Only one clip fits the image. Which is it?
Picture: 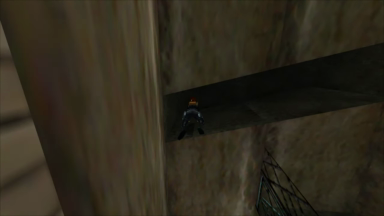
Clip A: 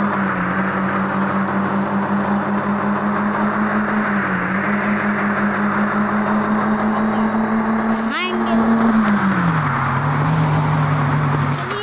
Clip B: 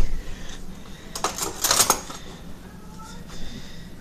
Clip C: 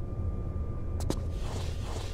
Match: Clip C